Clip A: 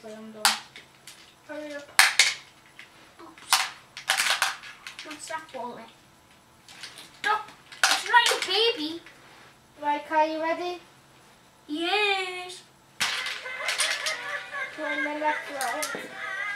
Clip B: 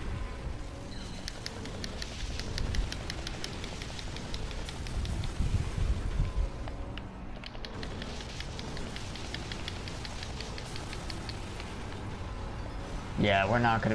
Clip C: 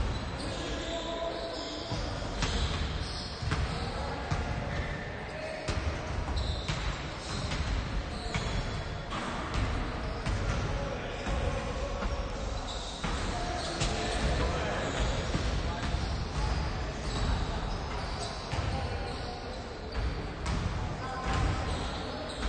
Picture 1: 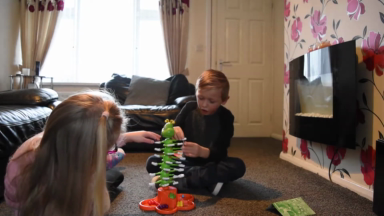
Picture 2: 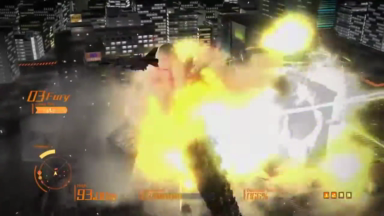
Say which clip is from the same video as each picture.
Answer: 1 A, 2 B